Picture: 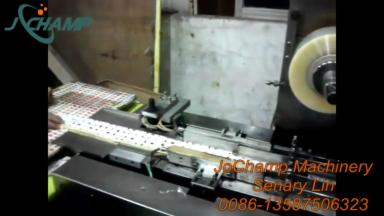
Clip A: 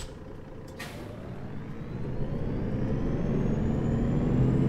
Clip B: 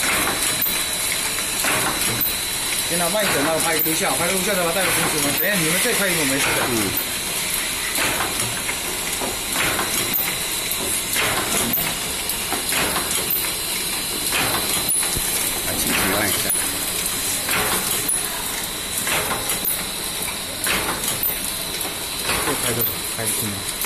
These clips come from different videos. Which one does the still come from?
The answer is B